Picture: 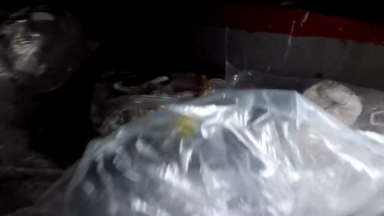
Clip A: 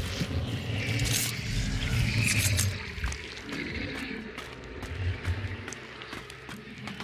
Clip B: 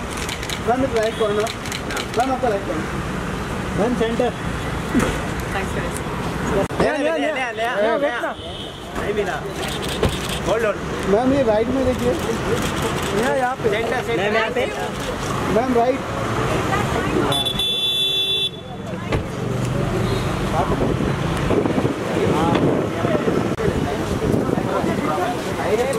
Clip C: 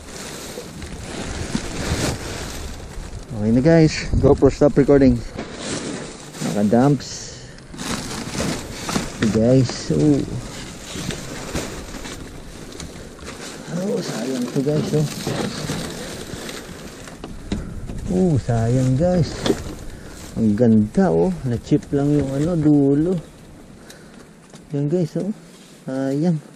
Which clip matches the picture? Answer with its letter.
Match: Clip C